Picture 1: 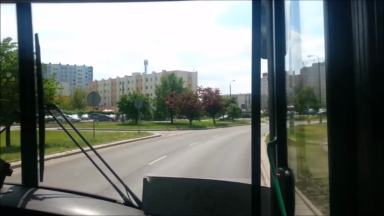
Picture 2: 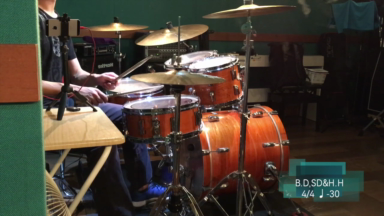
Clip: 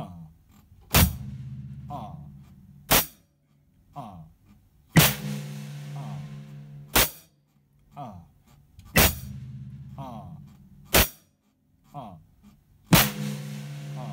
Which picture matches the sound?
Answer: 2